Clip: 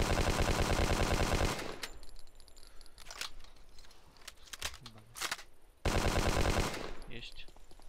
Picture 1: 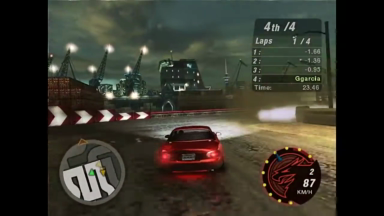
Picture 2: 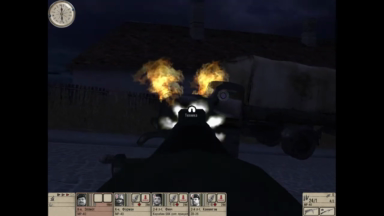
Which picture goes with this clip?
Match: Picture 2